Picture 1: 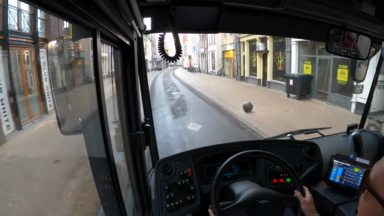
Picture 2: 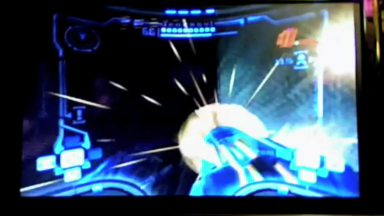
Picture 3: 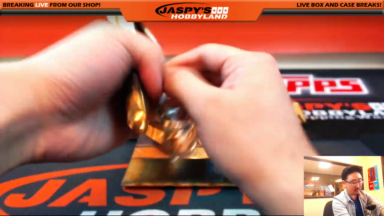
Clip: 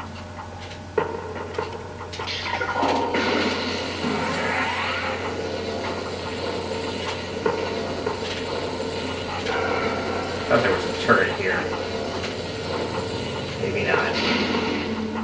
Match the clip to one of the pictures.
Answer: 2